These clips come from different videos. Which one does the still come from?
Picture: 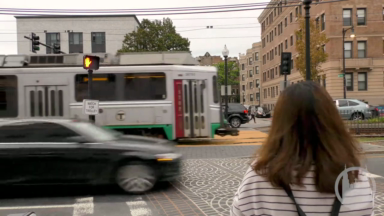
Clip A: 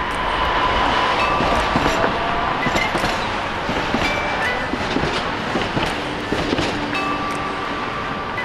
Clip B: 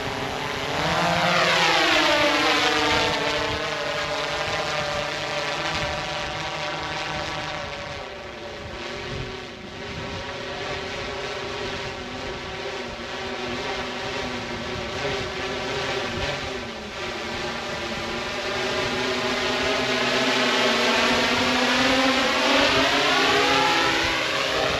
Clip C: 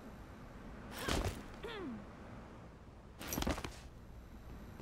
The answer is A